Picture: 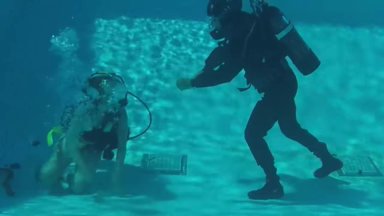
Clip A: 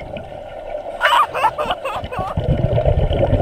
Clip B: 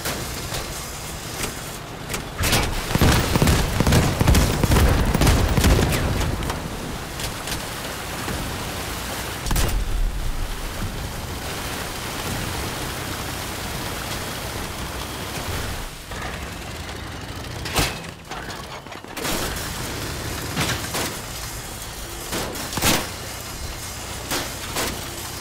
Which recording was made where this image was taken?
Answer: A